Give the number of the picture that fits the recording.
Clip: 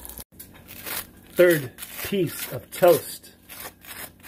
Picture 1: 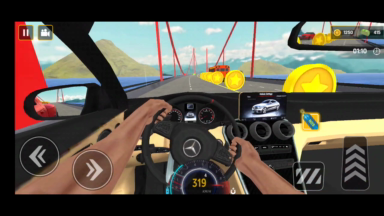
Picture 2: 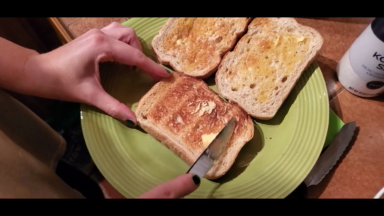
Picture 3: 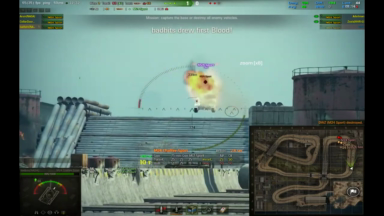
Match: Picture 2